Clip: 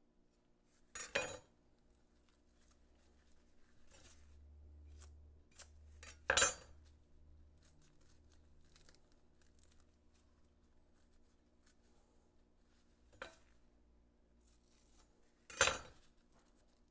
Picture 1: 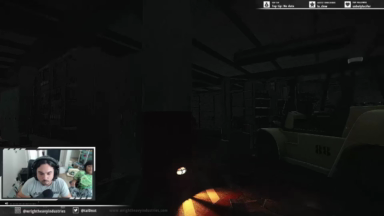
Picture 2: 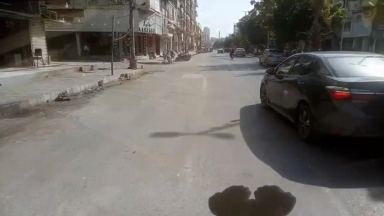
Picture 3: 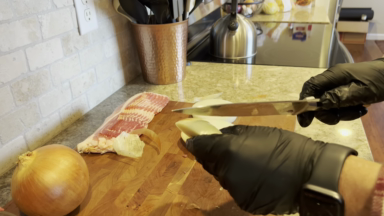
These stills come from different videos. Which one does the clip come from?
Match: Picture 3